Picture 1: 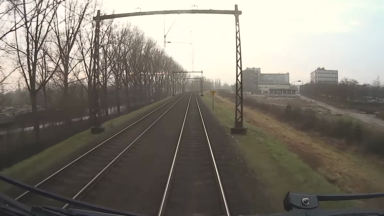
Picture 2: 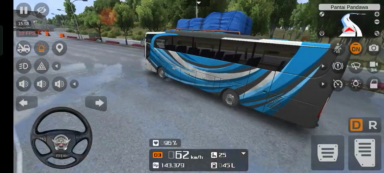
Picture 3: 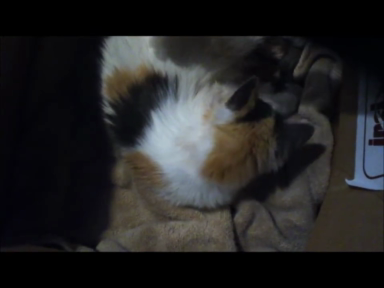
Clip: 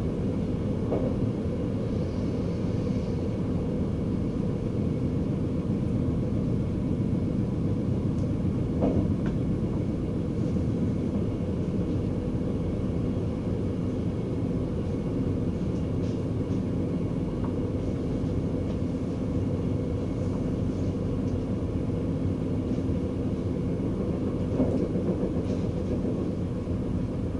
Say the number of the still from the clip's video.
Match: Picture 1